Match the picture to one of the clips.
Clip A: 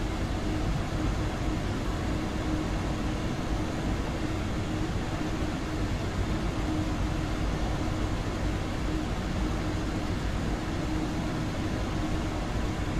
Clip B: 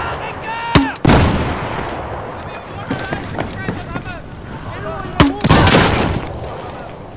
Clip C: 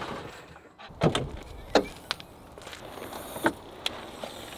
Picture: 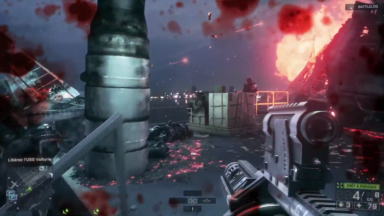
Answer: B